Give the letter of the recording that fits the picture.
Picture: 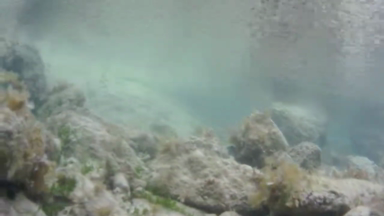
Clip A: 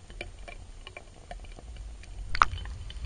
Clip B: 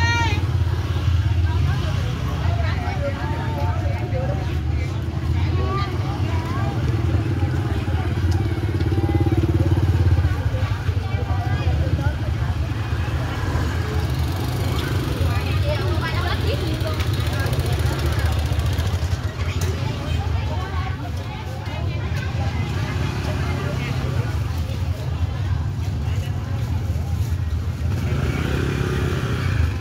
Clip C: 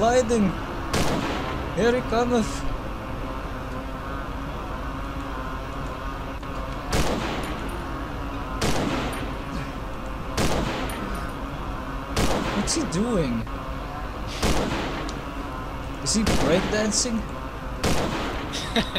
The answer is A